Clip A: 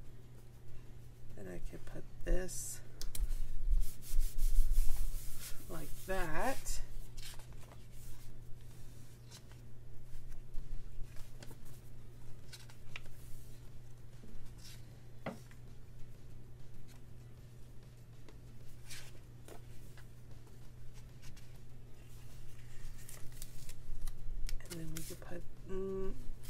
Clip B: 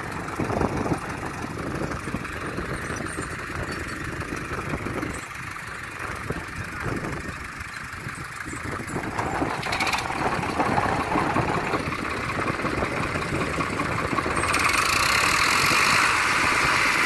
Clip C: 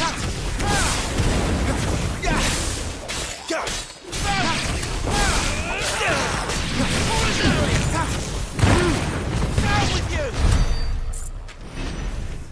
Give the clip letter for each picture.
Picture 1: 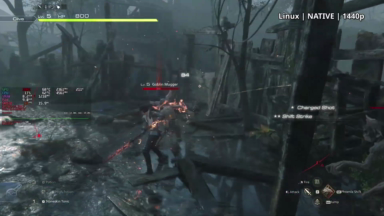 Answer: C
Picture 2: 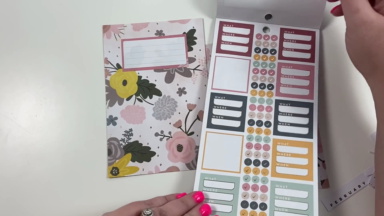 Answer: A